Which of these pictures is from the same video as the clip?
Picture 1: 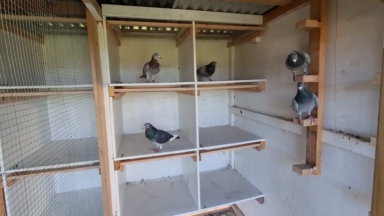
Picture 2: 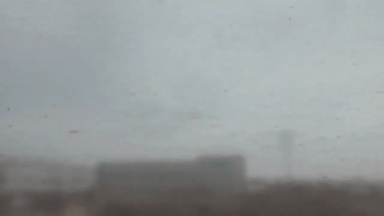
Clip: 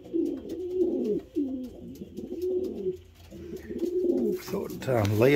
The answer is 1